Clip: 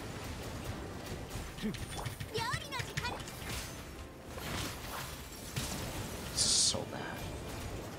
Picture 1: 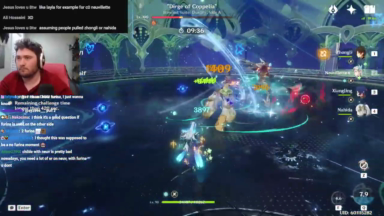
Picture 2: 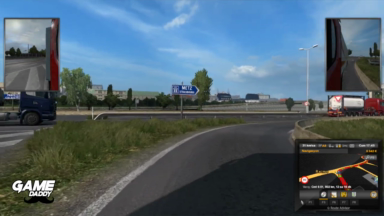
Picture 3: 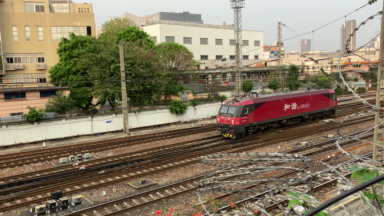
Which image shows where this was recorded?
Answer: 1